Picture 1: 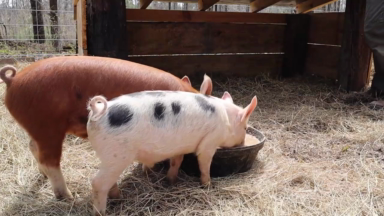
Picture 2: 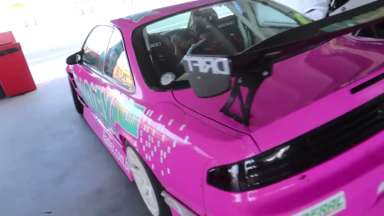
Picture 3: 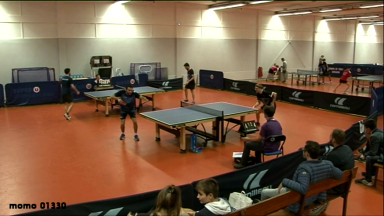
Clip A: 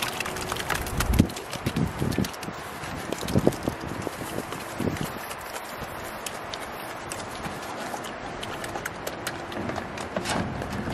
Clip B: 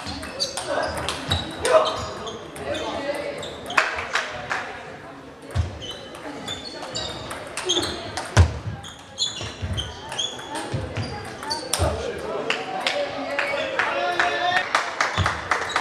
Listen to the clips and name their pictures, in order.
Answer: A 1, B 3